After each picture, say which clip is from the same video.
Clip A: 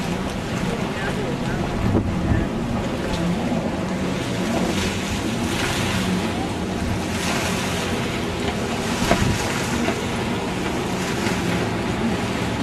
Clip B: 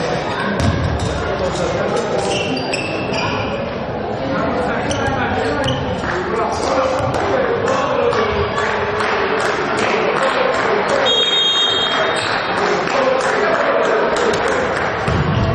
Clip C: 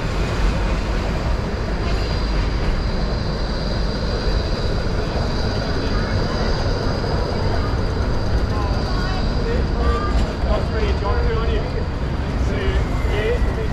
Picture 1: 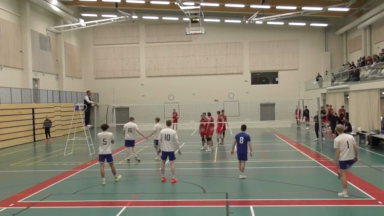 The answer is B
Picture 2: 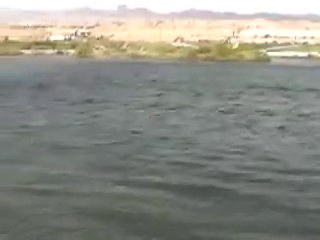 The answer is A